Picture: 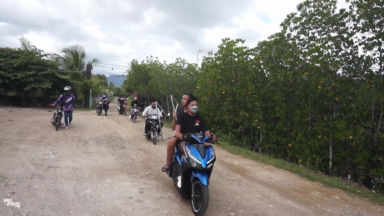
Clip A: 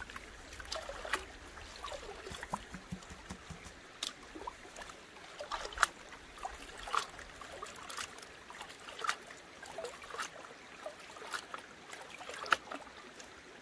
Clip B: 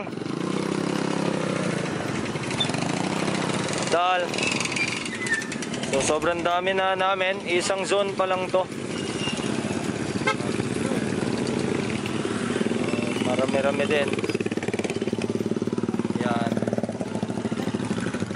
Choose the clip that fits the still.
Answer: B